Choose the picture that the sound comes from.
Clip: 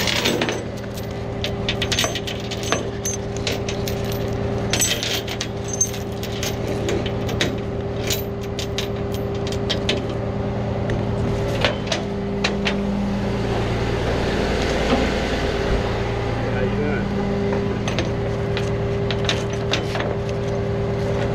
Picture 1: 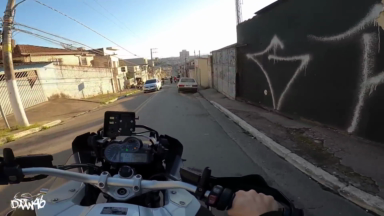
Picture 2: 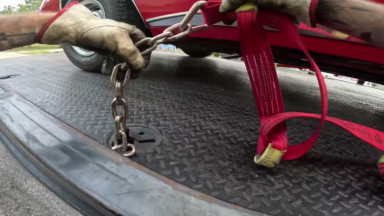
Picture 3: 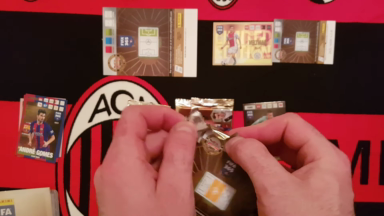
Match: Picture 2